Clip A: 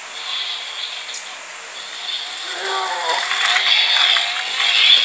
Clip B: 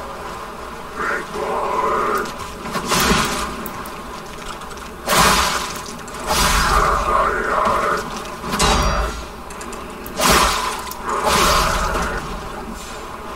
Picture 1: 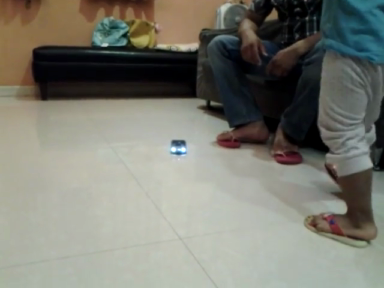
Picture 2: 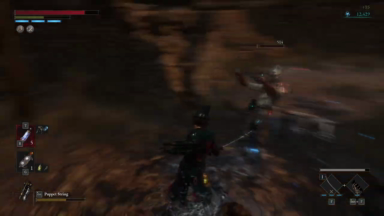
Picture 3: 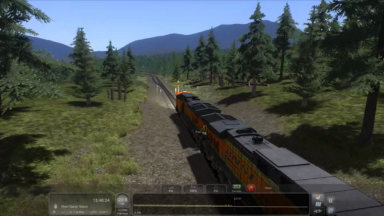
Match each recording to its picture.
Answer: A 1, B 2